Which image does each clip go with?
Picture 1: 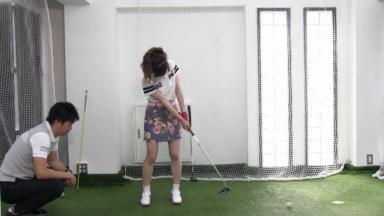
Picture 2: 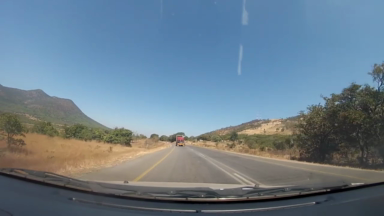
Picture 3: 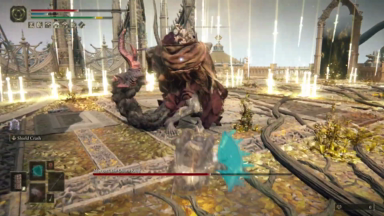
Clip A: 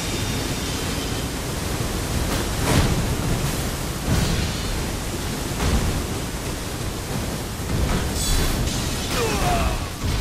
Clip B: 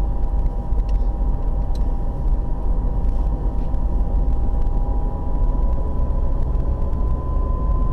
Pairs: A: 3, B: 2